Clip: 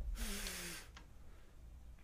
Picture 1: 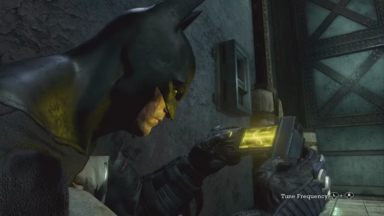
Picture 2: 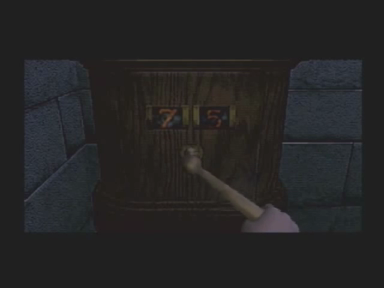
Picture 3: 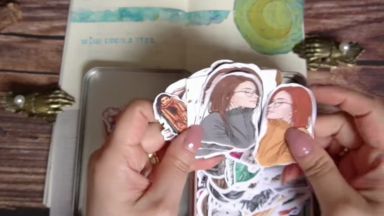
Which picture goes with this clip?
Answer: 2